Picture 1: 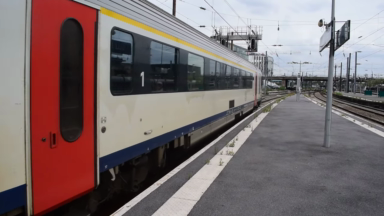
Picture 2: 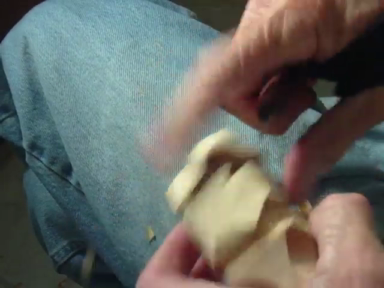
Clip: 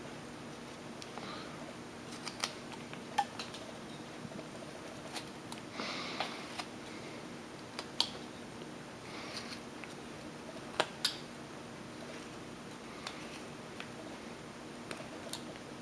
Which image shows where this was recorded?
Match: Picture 2